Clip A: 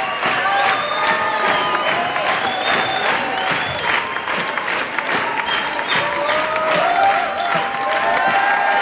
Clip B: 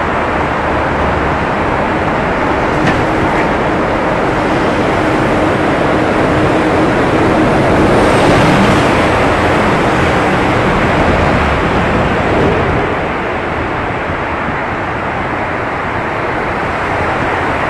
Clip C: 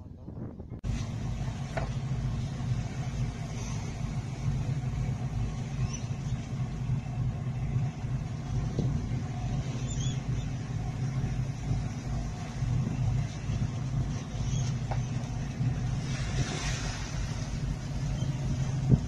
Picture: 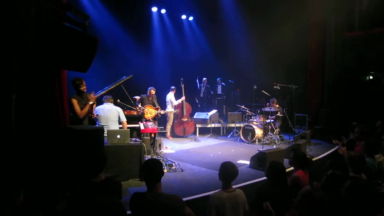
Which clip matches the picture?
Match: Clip A